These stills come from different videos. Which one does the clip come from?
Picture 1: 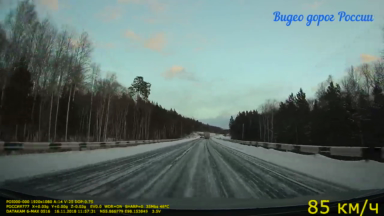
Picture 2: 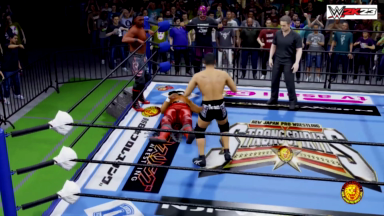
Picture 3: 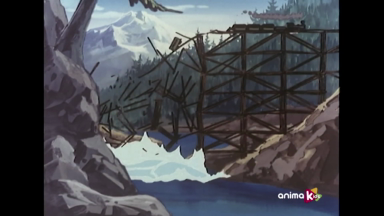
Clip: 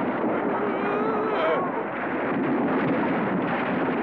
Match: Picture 3